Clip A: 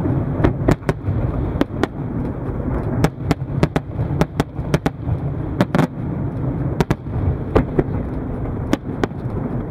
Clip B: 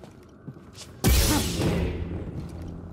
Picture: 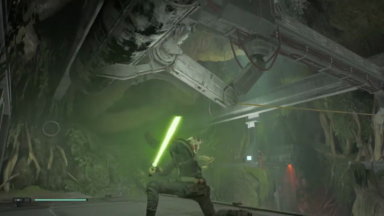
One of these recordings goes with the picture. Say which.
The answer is B